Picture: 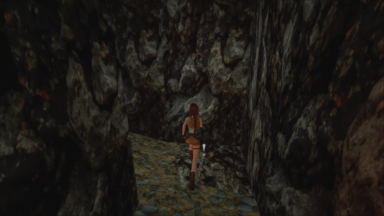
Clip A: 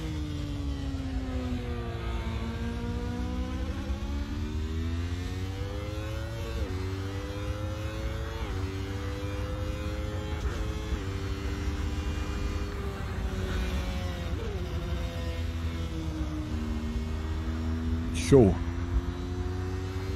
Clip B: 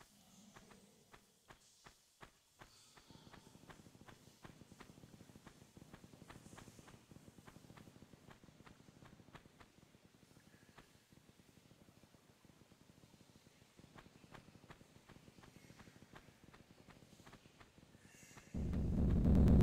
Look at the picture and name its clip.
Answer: B